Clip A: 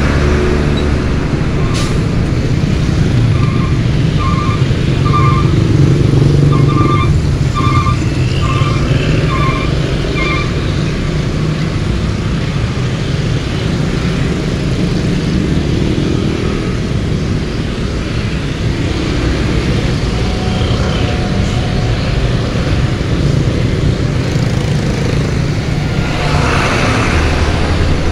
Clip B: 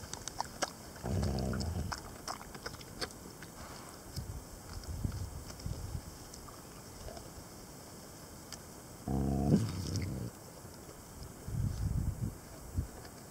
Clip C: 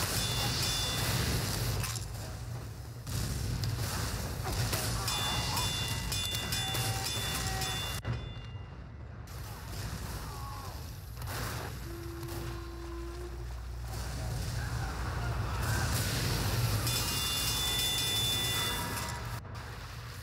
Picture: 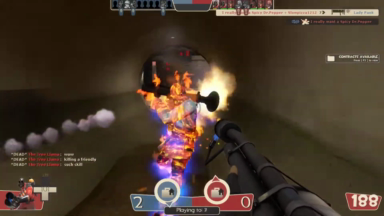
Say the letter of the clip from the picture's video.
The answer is C